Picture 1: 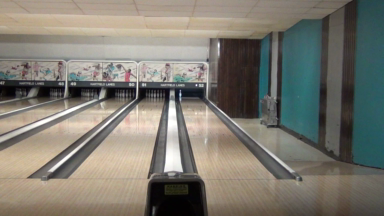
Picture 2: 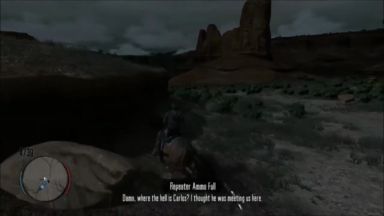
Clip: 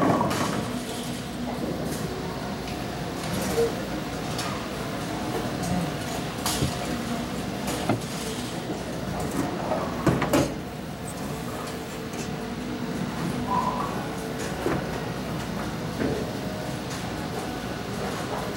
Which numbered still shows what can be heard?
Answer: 1